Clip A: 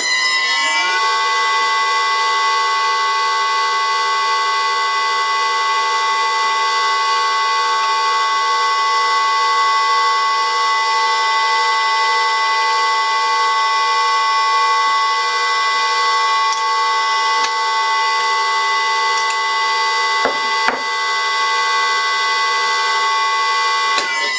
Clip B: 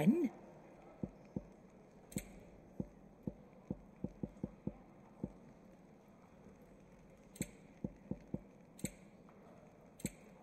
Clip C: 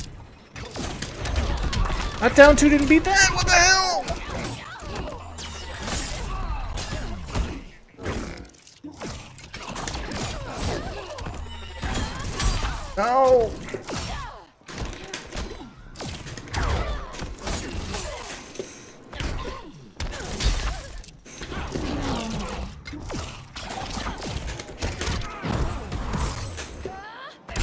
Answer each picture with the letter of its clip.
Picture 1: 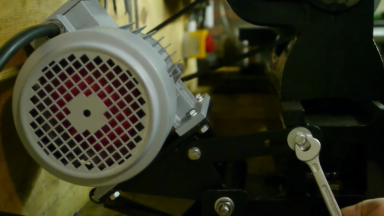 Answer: A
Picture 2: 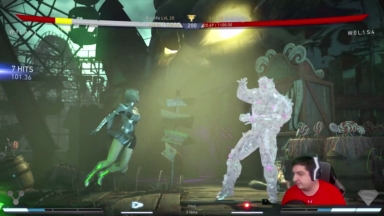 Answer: C